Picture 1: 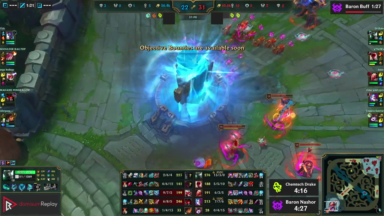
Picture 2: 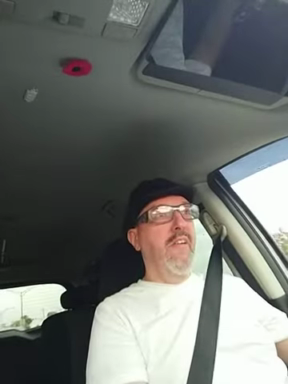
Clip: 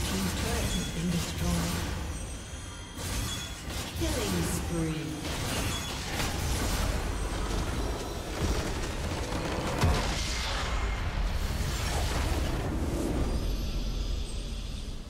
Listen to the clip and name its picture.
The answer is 1